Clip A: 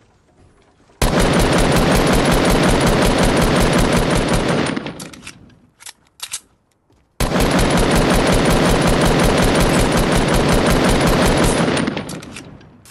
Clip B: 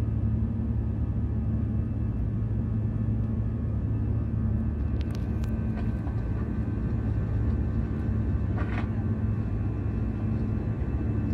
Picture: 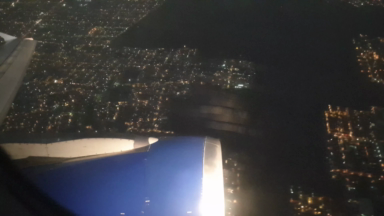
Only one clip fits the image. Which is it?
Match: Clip B